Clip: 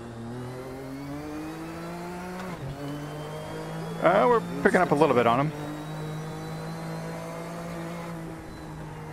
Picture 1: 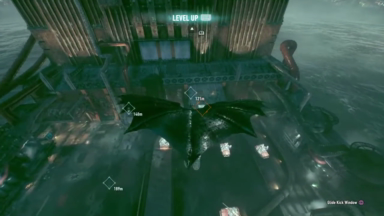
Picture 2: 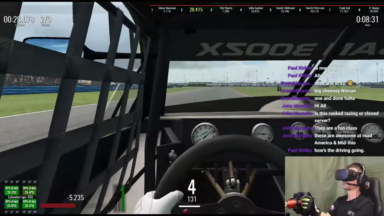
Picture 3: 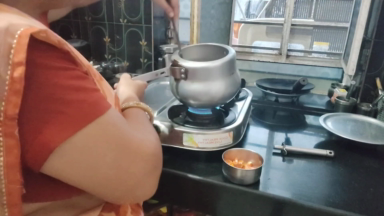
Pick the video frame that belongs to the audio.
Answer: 2